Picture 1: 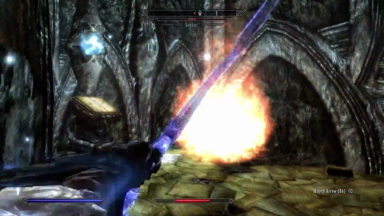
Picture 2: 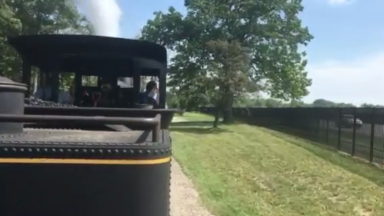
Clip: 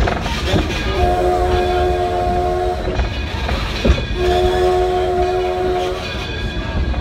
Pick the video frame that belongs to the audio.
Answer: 2